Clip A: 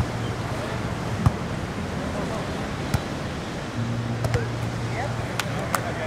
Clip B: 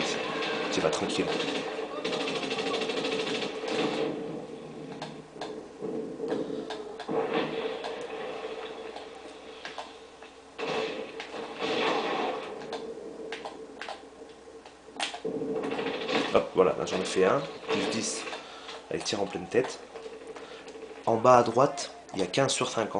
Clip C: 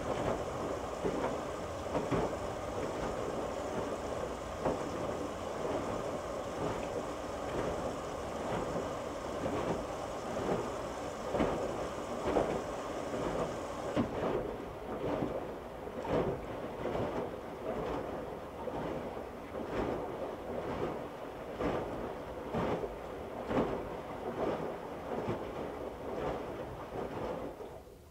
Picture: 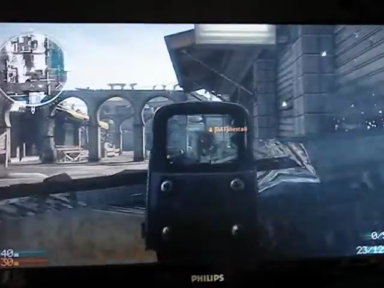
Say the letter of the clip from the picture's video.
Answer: B